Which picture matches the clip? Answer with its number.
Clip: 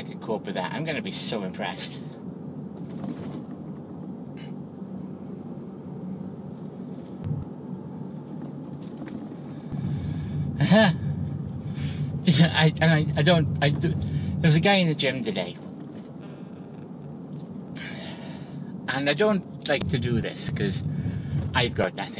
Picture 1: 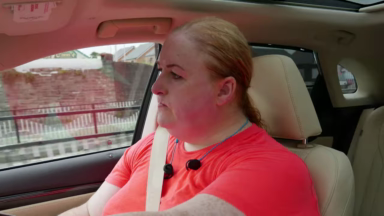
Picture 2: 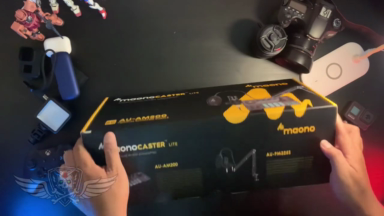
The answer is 1